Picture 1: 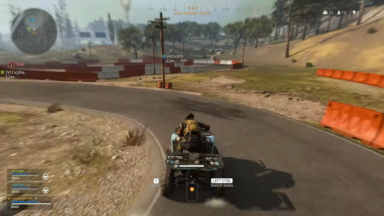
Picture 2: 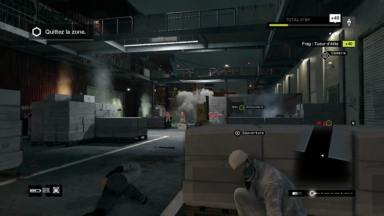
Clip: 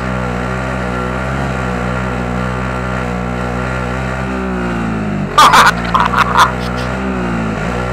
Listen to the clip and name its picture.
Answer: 1